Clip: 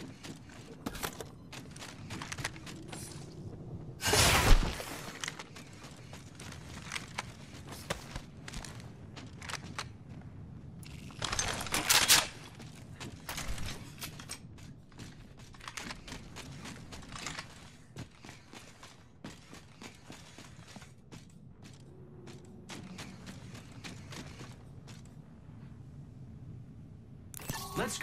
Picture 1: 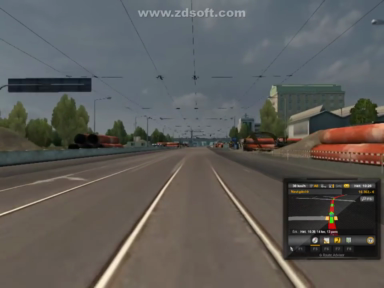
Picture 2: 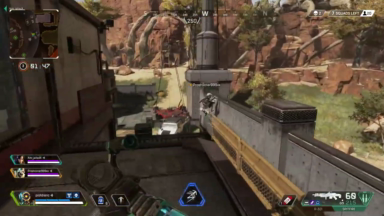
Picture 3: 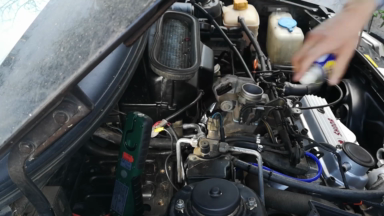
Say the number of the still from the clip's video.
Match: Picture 2